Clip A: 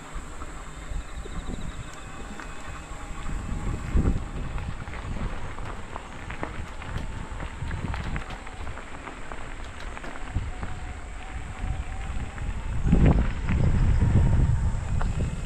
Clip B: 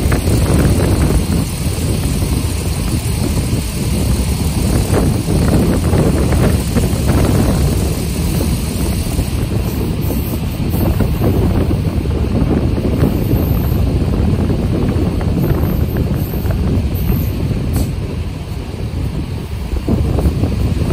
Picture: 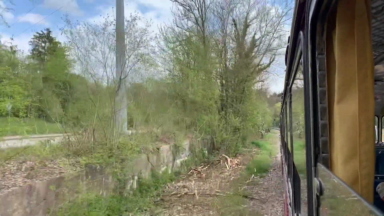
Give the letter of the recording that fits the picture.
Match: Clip B